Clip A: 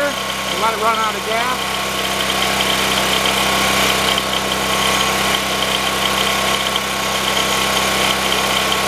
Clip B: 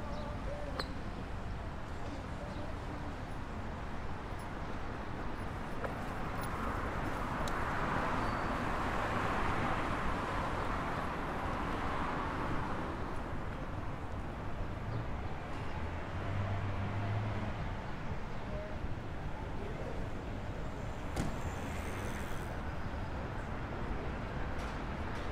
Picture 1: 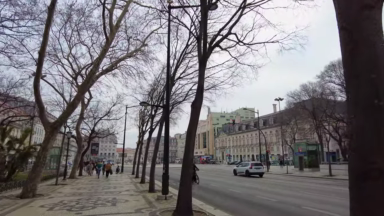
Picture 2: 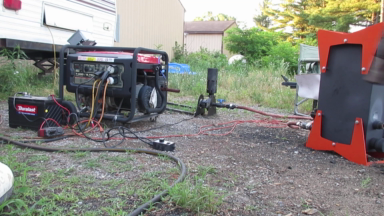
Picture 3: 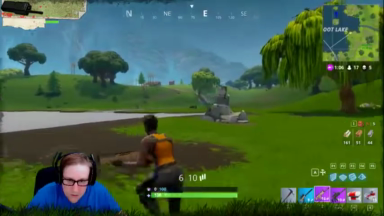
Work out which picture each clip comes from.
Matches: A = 2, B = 1